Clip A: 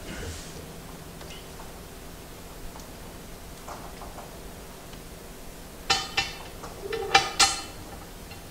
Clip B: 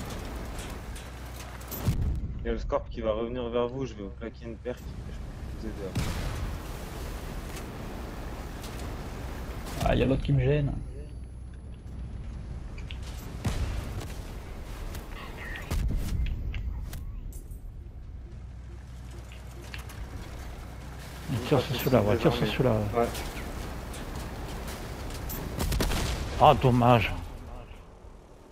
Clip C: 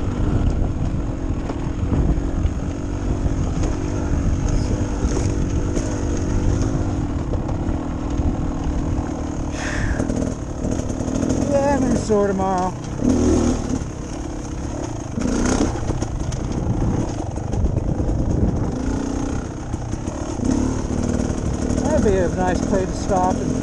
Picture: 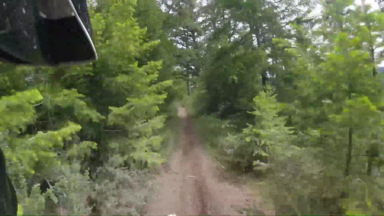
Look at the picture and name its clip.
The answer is C